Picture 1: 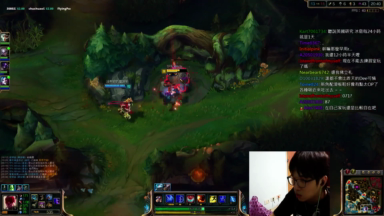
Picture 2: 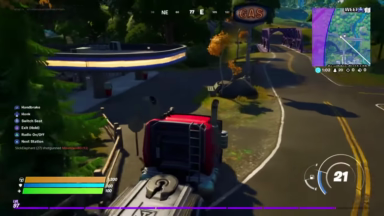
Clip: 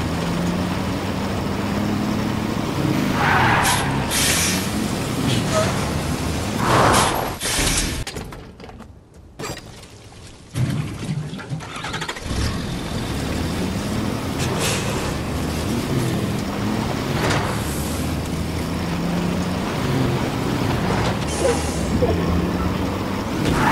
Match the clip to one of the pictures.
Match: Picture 2